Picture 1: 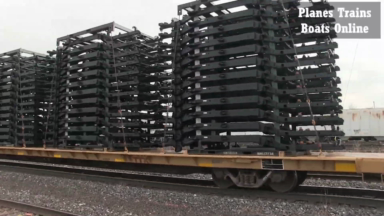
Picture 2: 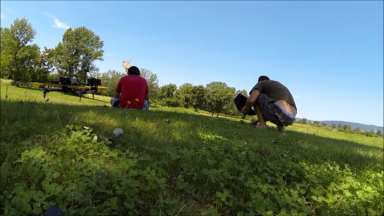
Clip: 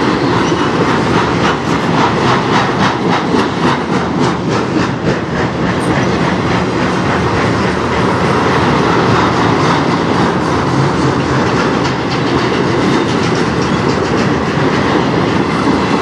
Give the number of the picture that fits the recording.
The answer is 1